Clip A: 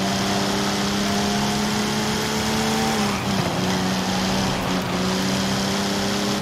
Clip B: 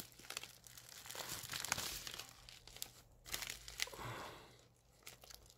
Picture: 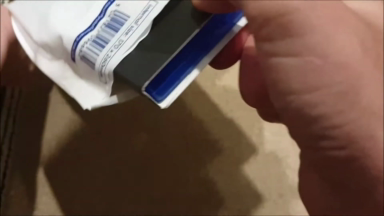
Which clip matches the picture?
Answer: B